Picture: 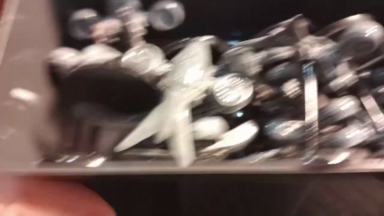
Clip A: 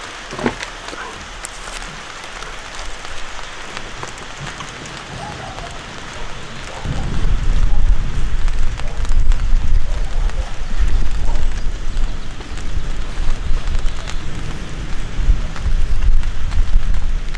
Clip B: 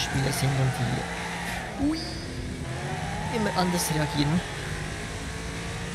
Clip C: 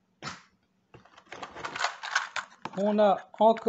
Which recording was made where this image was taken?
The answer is C